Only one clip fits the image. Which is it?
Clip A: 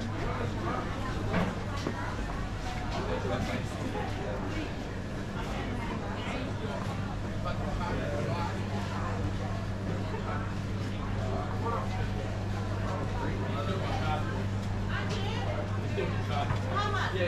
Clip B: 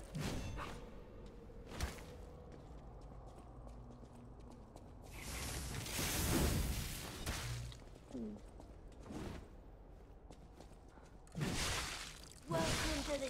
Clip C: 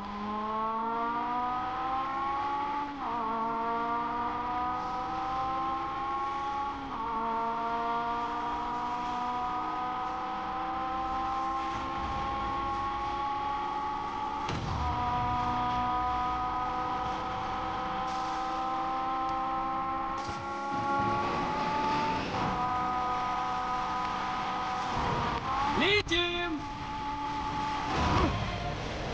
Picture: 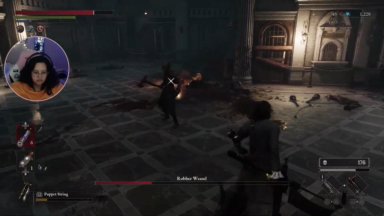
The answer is B